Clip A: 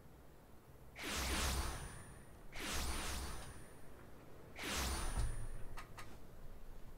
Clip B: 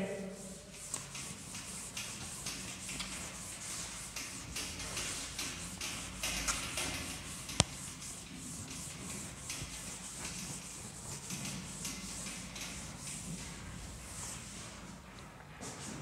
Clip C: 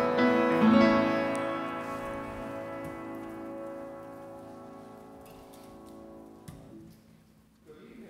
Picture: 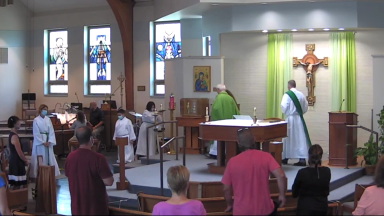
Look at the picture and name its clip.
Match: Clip C